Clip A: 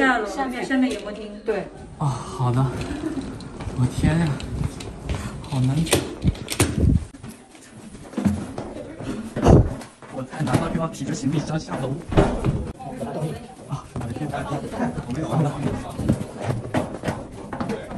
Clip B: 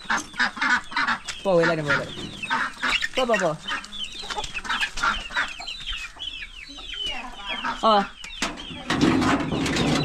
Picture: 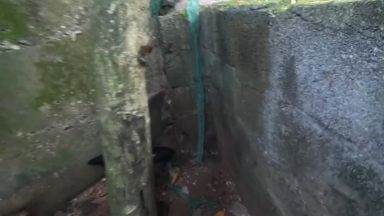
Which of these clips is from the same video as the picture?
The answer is B